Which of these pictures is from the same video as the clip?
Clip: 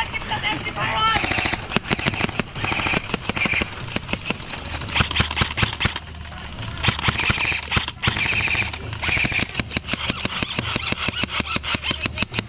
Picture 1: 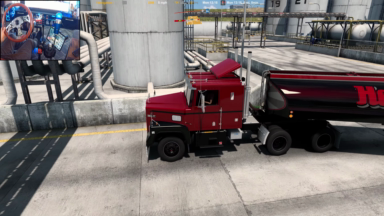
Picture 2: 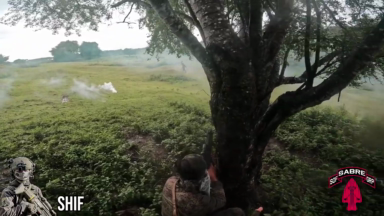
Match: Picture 2